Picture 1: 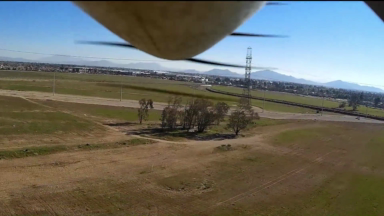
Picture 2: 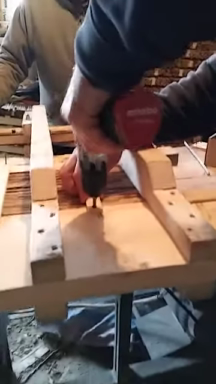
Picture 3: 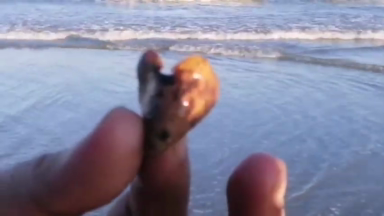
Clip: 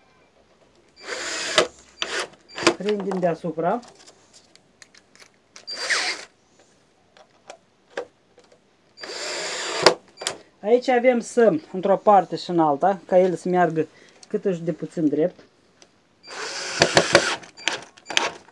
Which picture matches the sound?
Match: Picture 2